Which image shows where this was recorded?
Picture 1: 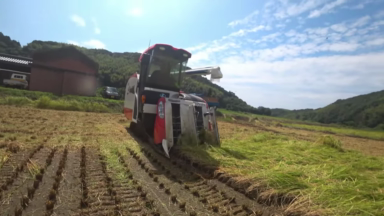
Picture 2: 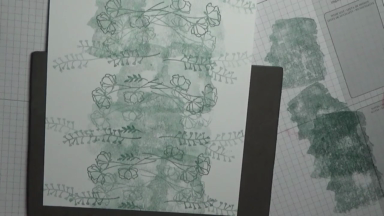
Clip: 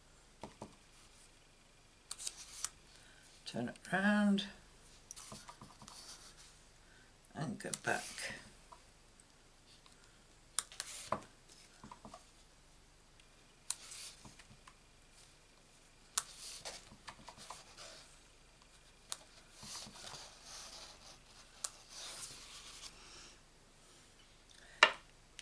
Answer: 2